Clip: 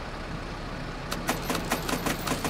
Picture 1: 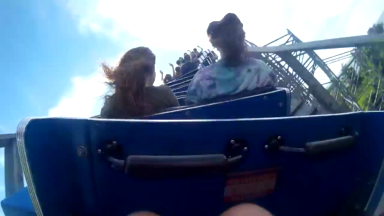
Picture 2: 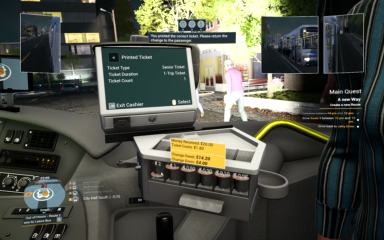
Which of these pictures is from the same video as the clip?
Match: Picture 2